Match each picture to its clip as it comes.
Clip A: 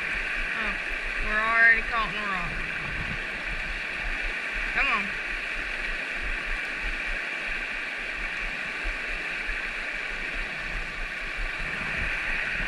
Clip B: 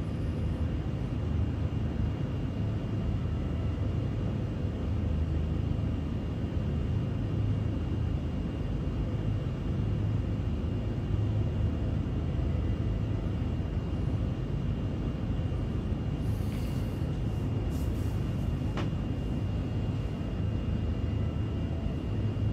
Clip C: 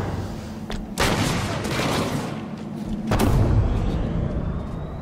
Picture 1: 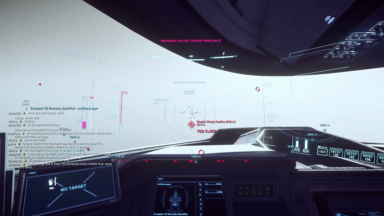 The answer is B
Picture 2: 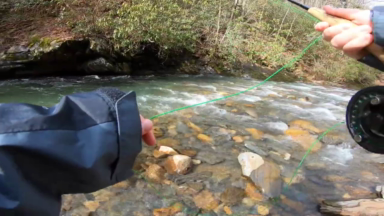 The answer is A